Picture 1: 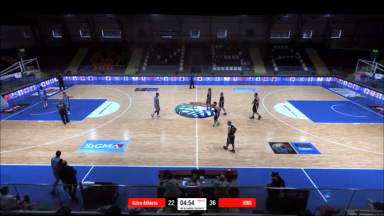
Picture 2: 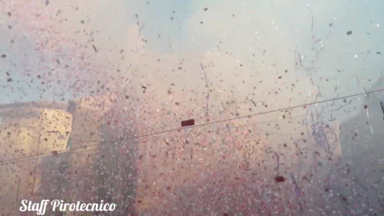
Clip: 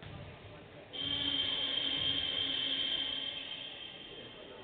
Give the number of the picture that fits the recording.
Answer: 1